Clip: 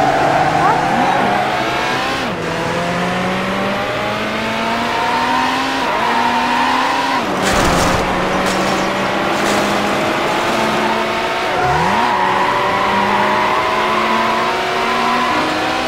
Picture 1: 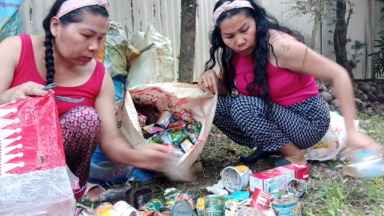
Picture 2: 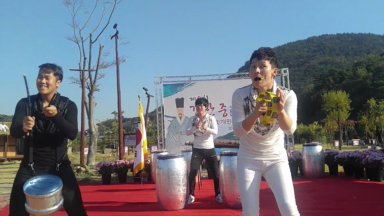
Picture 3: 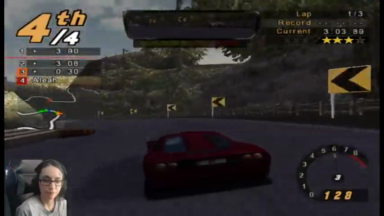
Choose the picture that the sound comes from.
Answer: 3